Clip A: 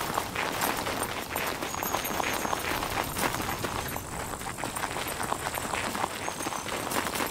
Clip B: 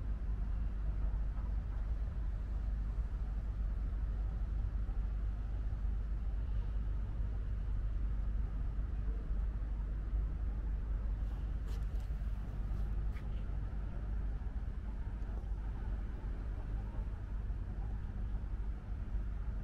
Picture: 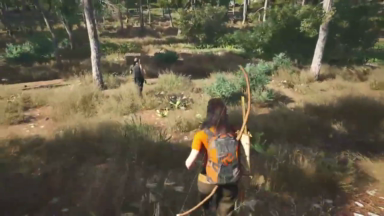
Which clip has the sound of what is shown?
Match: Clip A